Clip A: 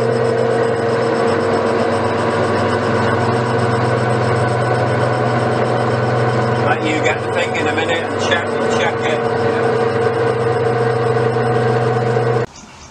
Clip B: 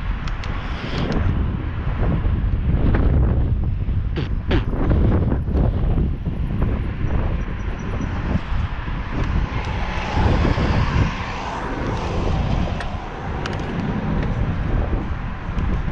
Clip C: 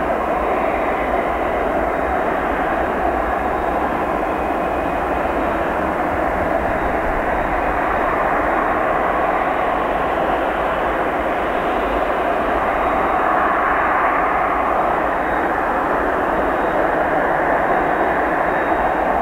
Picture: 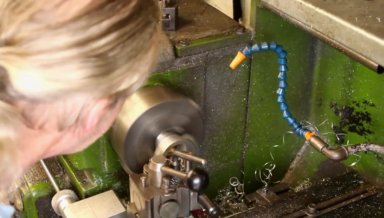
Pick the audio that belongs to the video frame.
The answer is A